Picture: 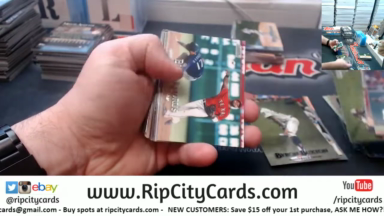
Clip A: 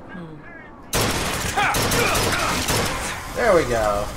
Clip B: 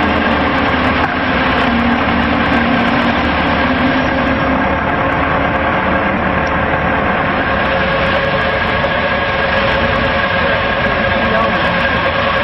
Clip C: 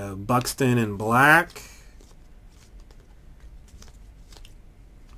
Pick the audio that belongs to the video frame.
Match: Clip C